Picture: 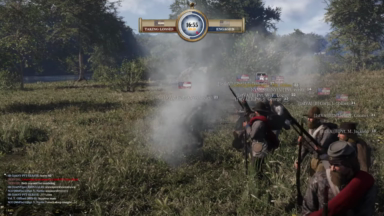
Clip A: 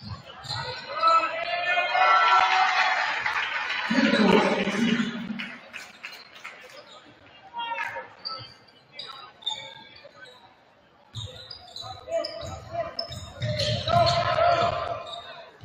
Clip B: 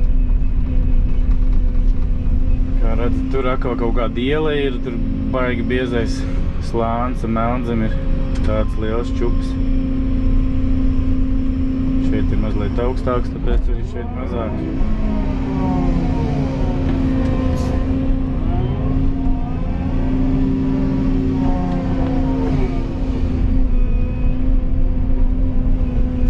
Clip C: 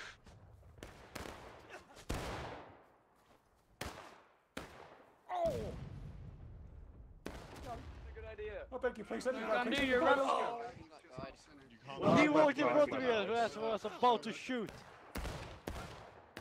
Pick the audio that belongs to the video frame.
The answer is C